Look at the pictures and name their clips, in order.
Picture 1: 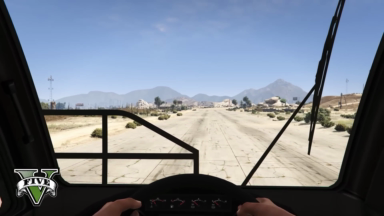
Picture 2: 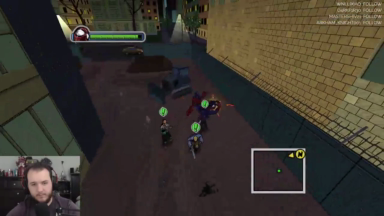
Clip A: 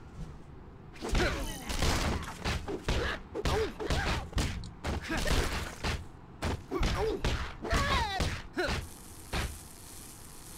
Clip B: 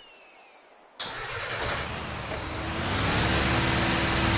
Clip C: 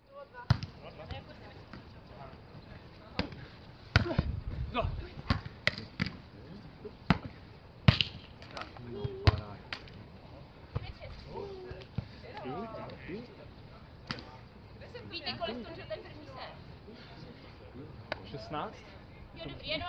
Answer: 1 B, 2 A